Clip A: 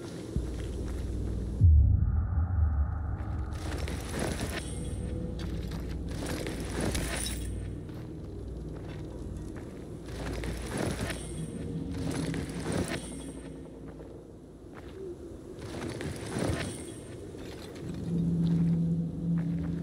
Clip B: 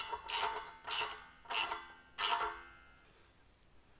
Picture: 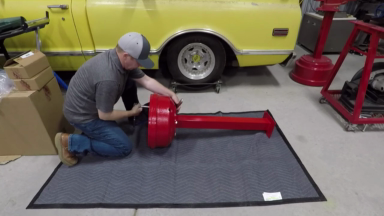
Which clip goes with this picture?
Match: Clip B